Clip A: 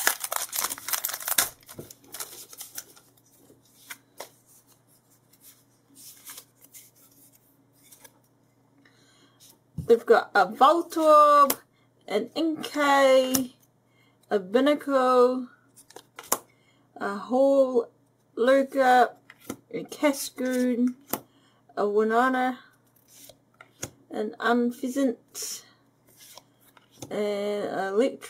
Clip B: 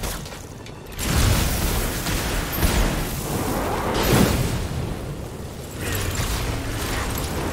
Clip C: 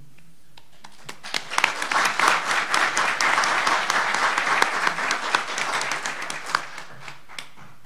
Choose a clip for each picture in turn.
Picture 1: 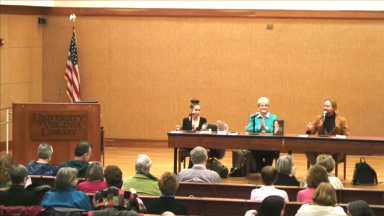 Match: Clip C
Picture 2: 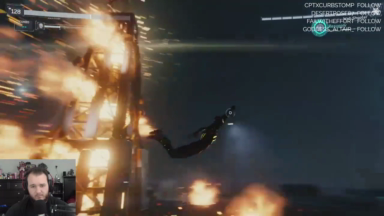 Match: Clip B